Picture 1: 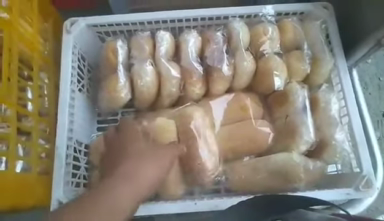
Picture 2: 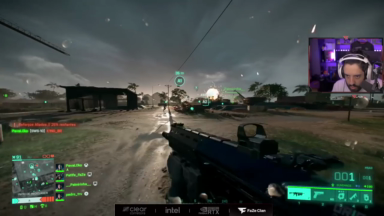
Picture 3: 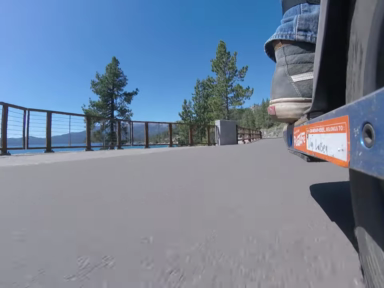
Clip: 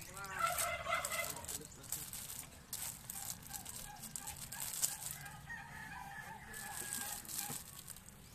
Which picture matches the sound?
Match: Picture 1